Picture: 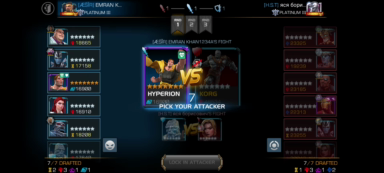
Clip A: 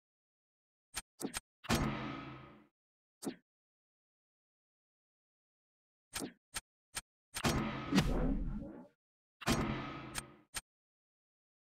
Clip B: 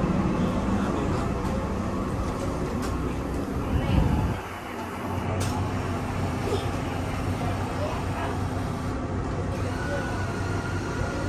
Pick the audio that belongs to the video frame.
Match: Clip A